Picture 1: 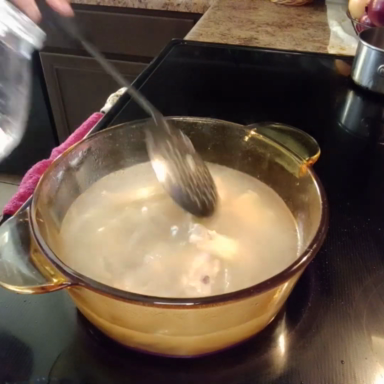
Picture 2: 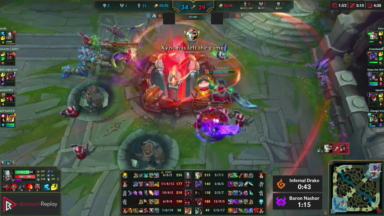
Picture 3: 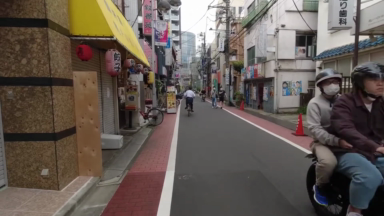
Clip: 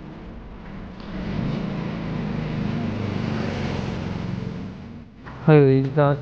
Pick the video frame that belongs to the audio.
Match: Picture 3